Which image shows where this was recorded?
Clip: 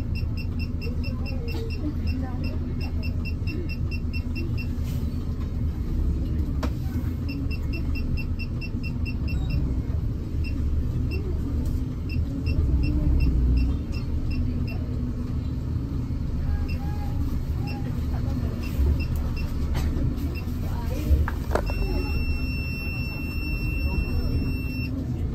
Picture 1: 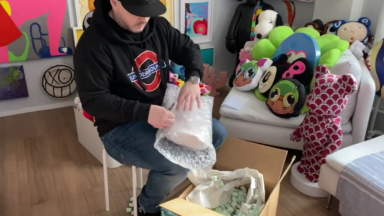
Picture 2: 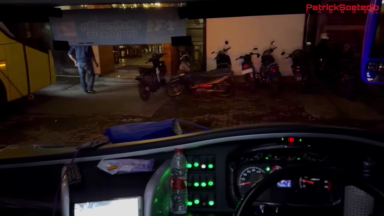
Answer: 2